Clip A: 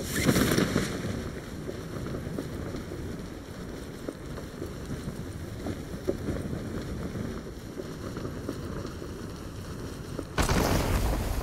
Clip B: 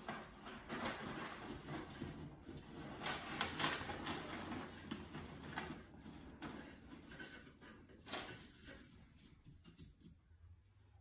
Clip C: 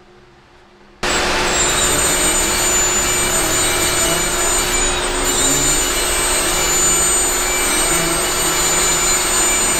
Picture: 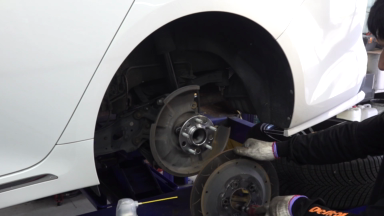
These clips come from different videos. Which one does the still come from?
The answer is C